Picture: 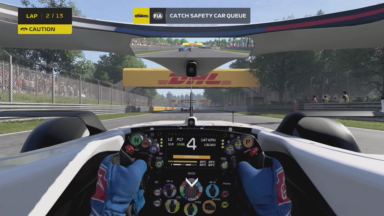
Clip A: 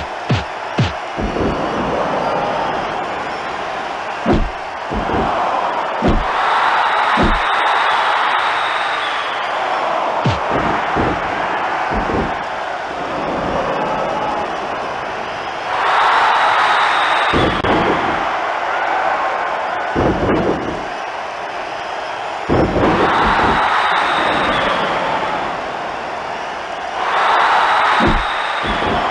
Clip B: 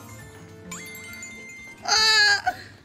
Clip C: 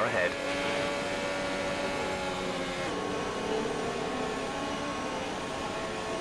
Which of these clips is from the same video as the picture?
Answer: C